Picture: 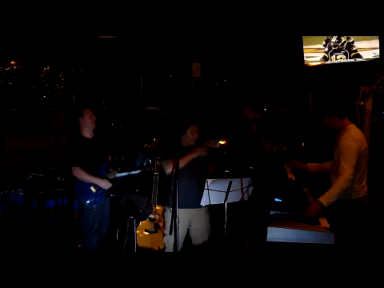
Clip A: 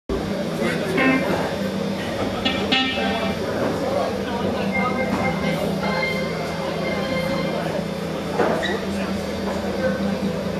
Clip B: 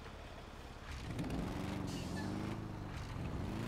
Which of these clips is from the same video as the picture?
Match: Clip A